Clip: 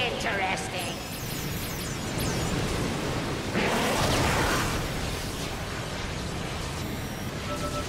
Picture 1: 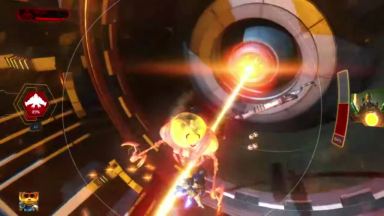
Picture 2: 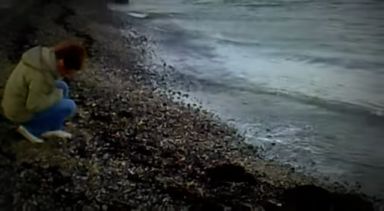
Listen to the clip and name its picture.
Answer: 1